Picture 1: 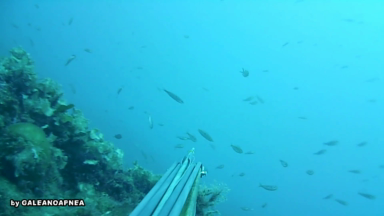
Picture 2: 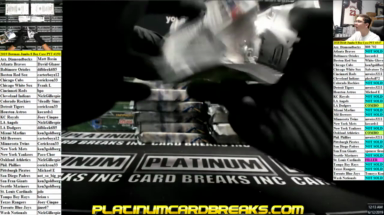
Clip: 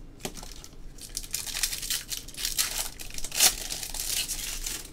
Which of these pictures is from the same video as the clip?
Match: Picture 2